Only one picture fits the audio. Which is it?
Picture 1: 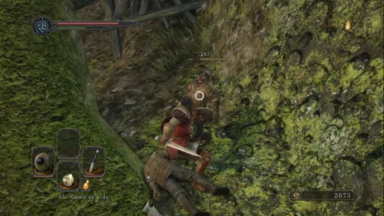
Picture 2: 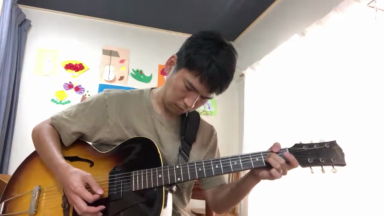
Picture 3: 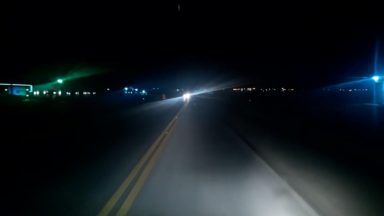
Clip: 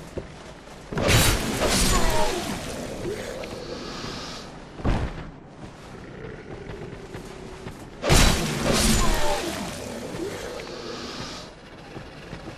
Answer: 1